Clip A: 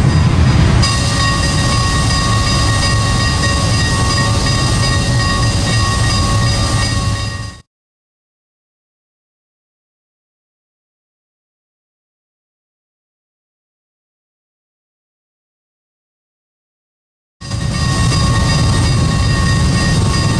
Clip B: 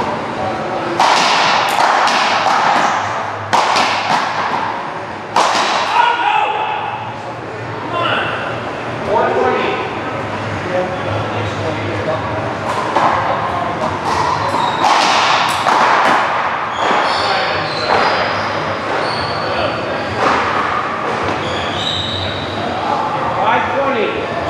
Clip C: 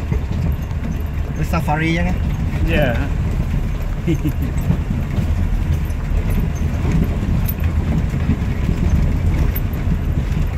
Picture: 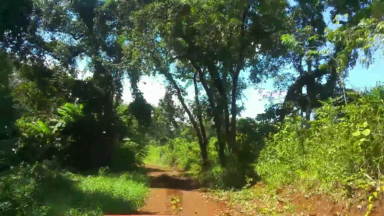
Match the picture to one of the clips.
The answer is C